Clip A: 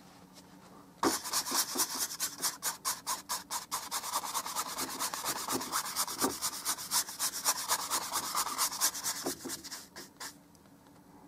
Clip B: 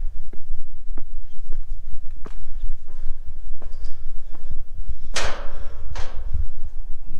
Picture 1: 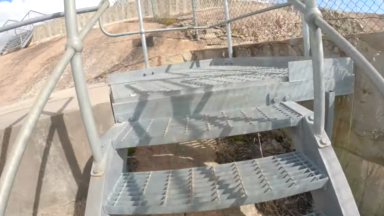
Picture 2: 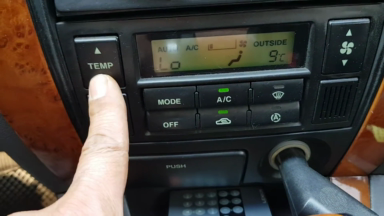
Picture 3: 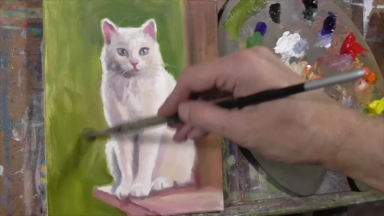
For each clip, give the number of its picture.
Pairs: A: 3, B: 1